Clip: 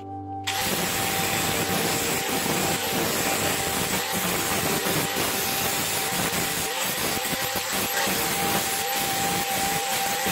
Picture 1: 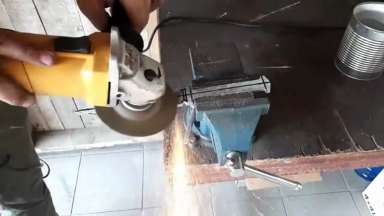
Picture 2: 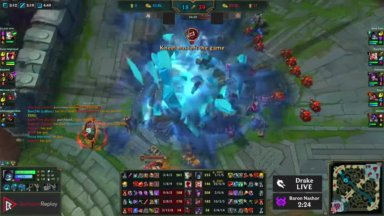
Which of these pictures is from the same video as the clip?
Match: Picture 1